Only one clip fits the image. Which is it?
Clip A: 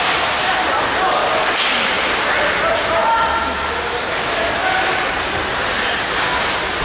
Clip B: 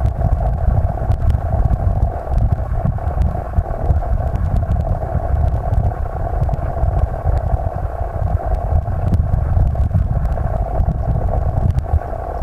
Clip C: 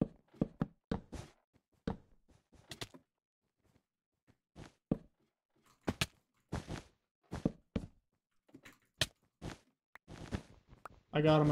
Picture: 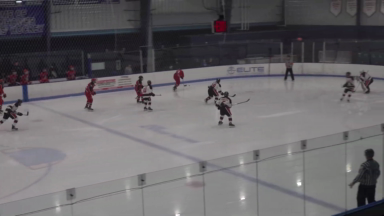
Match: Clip A